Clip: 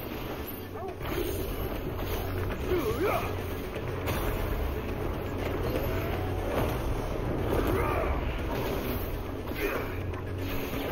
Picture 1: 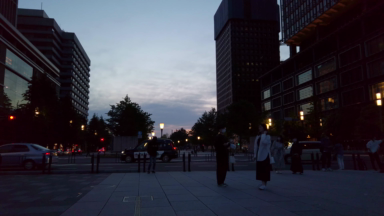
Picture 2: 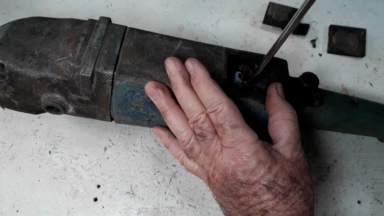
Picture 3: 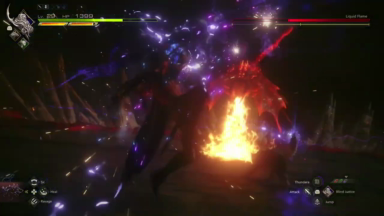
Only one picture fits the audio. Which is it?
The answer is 3